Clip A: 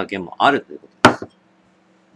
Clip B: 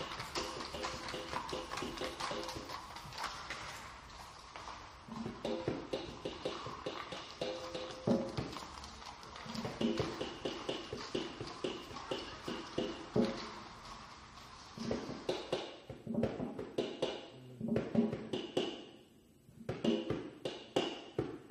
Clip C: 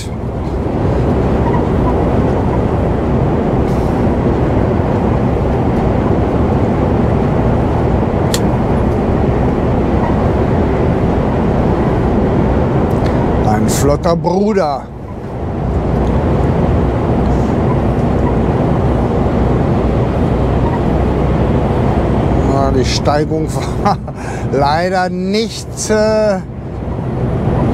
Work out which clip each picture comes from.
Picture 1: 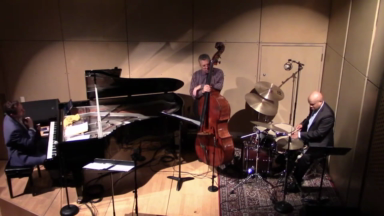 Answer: B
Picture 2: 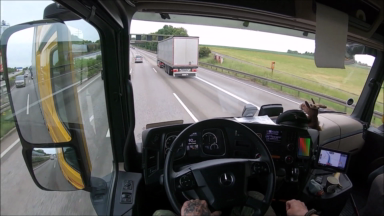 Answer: C